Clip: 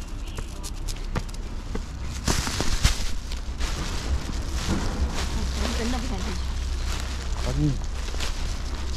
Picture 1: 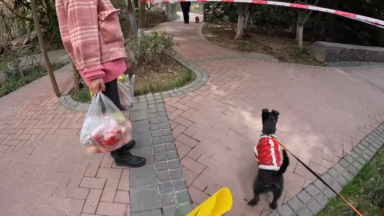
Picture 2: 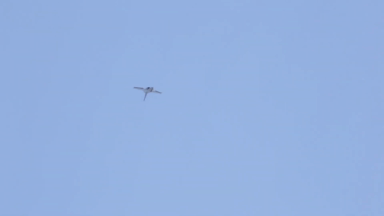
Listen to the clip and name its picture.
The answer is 1